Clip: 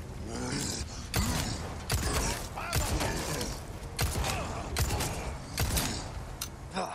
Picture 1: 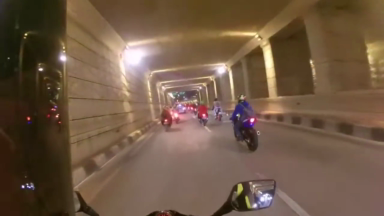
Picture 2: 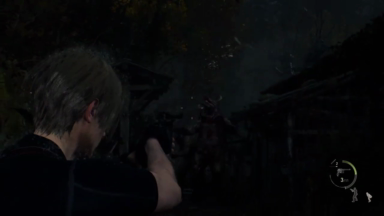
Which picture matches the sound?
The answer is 2